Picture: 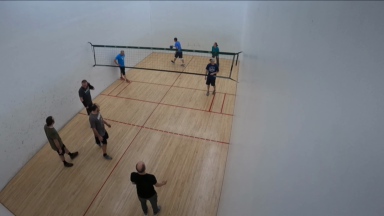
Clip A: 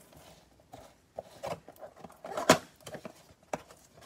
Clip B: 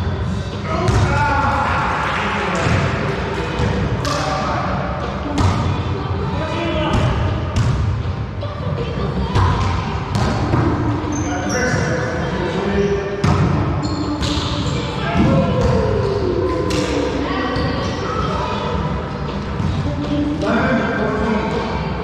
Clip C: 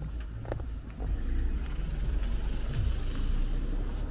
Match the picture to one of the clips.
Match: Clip B